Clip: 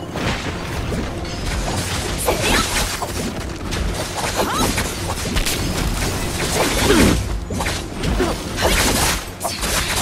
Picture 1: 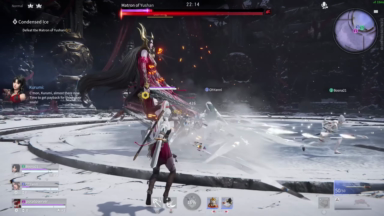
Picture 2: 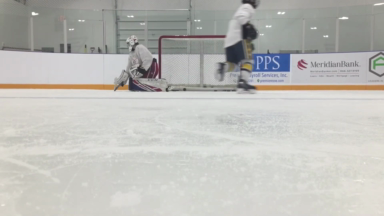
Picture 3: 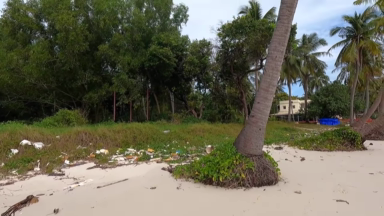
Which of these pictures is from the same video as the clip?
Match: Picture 1